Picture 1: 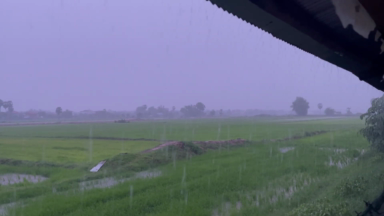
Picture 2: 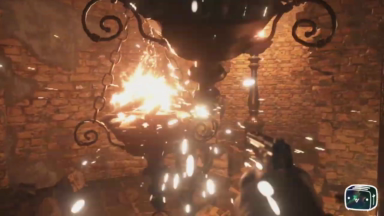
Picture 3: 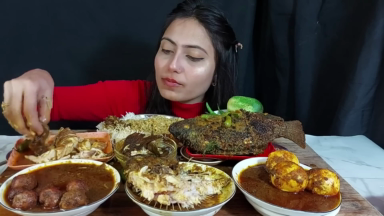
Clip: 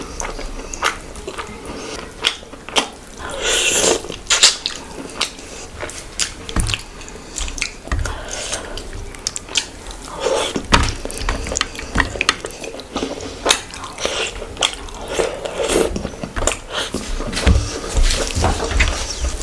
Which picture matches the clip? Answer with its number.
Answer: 3